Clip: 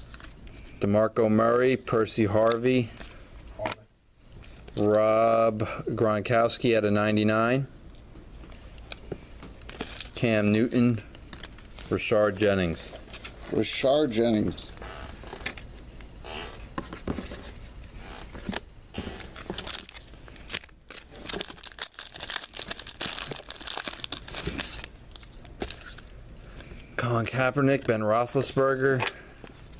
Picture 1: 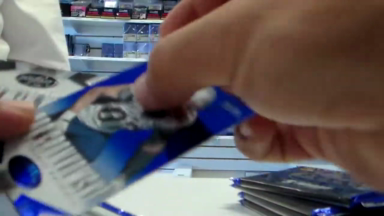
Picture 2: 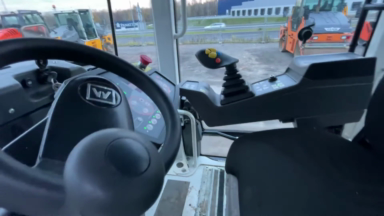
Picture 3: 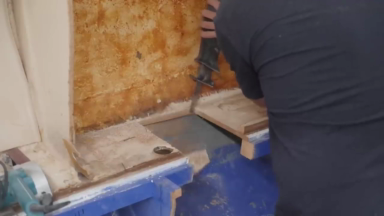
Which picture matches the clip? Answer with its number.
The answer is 1